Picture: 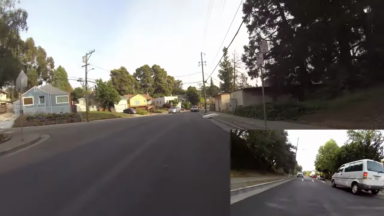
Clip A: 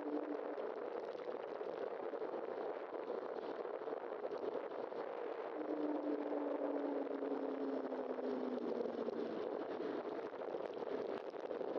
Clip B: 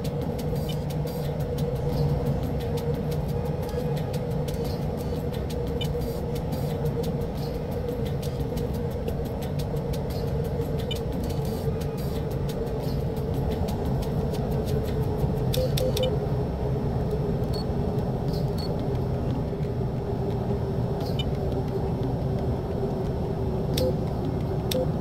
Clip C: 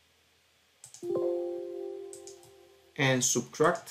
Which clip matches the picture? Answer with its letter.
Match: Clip A